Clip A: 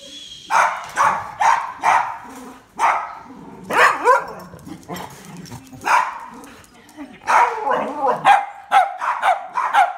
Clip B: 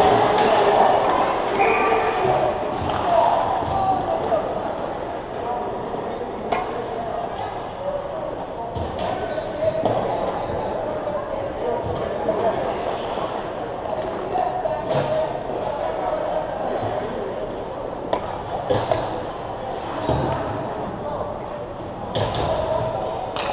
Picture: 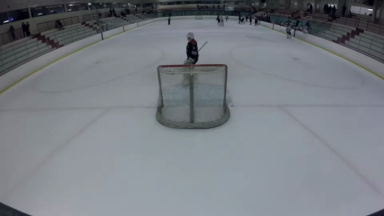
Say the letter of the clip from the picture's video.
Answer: B